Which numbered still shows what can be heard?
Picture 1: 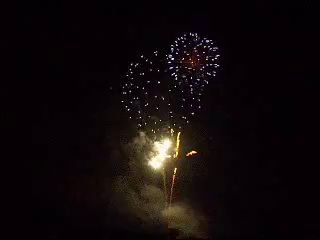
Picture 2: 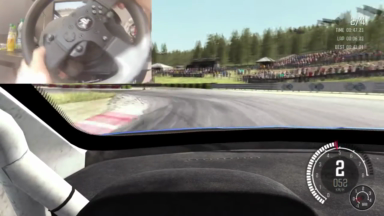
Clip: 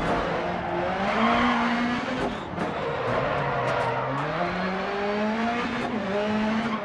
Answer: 2